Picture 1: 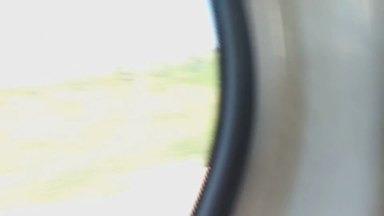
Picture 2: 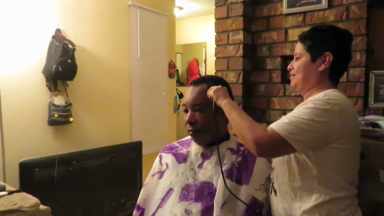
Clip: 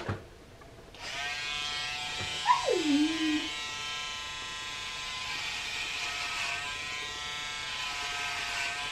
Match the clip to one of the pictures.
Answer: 2